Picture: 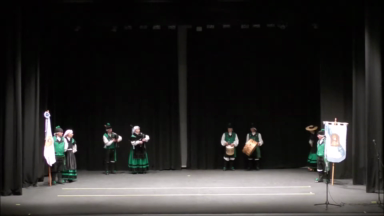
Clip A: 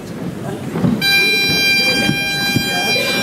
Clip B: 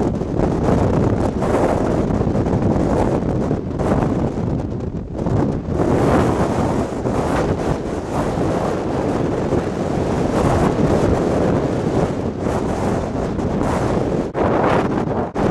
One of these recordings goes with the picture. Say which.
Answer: A